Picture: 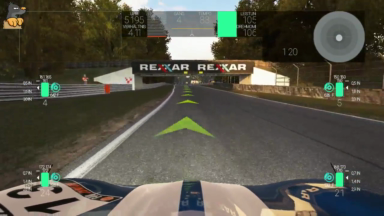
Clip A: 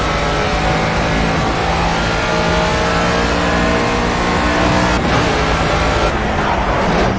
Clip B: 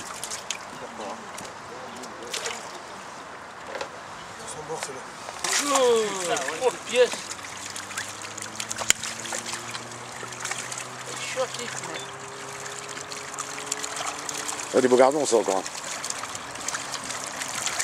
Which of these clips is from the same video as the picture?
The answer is A